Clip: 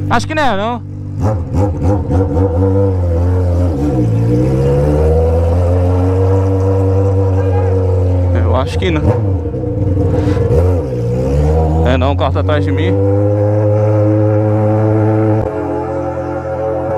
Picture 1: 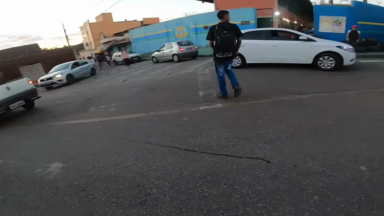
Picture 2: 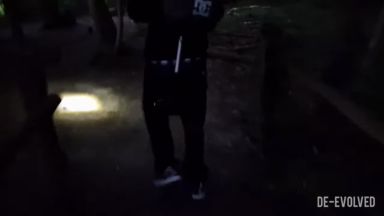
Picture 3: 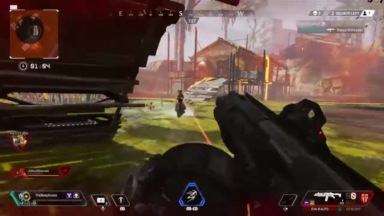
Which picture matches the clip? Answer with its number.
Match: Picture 1